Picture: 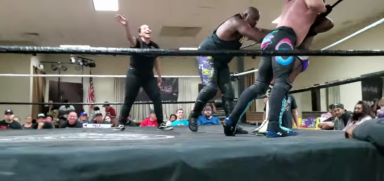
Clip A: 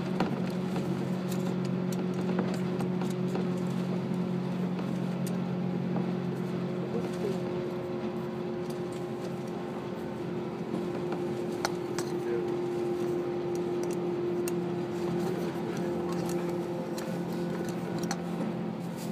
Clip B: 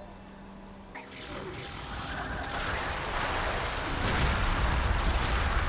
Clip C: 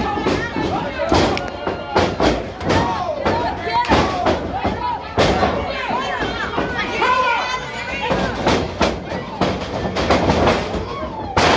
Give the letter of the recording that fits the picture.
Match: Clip C